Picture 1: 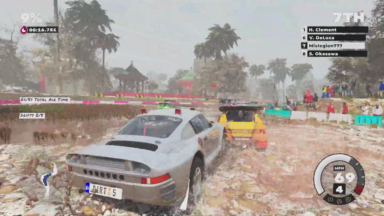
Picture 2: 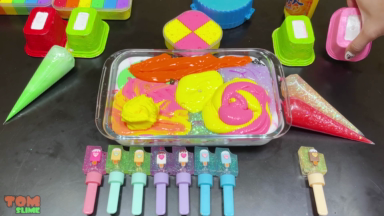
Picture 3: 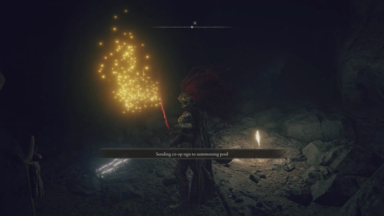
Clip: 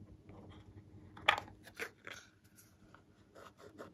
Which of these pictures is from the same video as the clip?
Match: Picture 2